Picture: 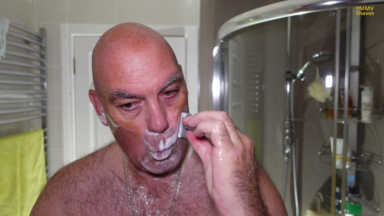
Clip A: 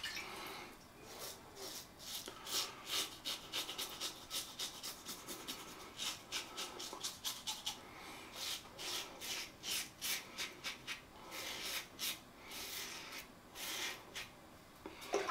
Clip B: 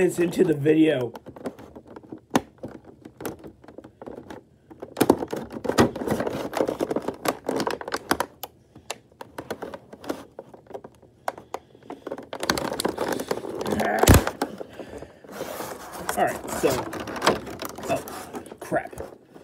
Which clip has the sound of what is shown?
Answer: A